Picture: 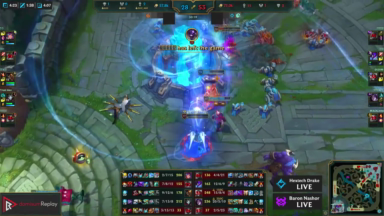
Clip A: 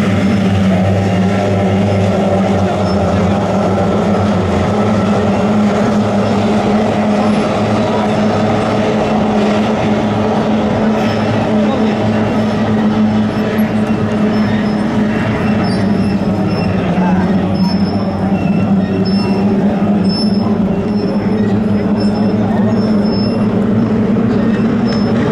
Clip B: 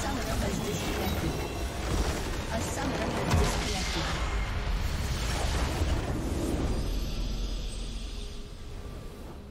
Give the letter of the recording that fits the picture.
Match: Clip B